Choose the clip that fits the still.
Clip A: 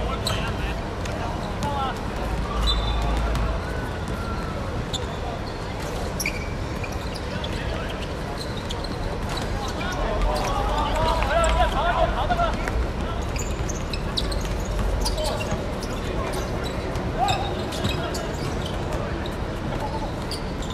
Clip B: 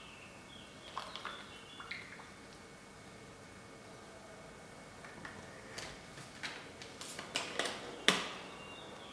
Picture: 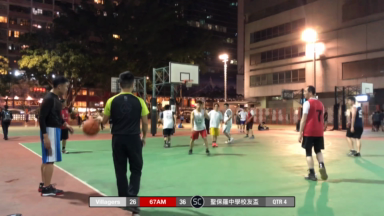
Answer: A